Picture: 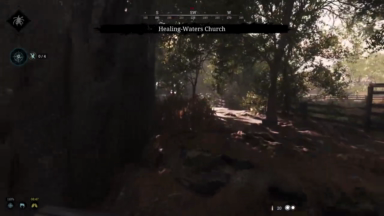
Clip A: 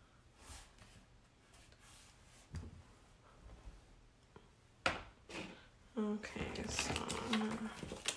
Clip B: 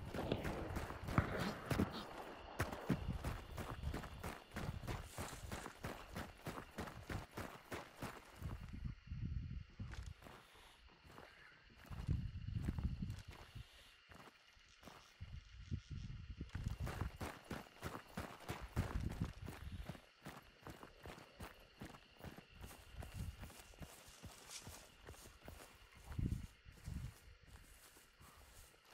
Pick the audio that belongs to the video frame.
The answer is B